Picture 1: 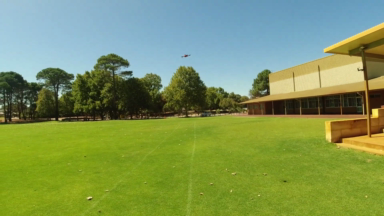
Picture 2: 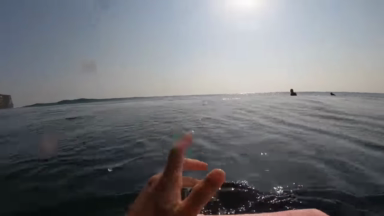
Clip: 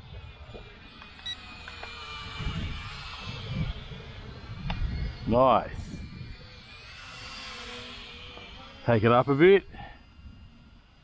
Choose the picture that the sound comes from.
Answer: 1